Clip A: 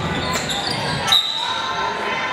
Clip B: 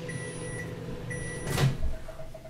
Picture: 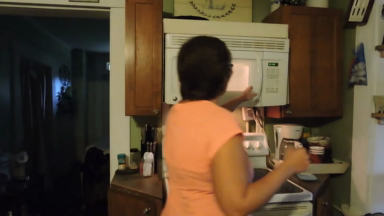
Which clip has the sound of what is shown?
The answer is B